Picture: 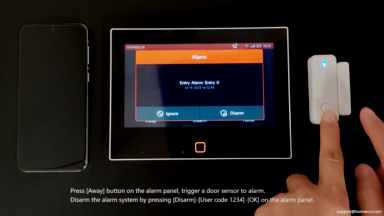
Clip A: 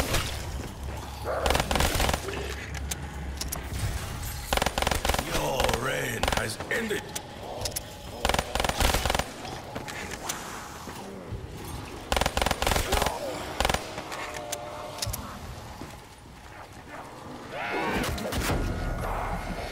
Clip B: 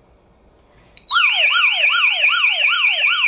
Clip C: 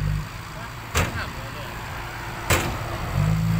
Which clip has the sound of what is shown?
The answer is B